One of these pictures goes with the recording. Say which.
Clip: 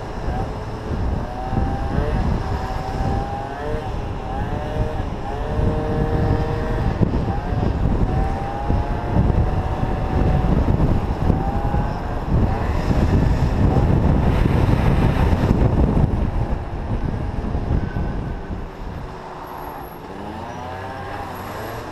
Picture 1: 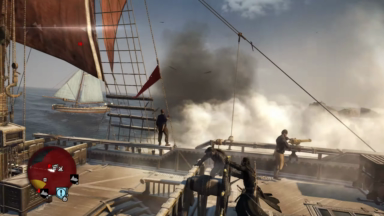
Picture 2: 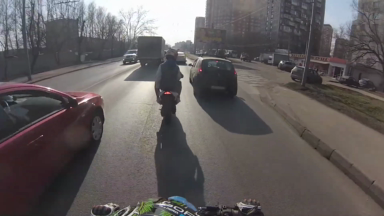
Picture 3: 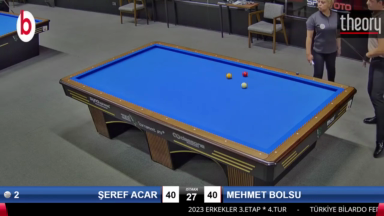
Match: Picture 2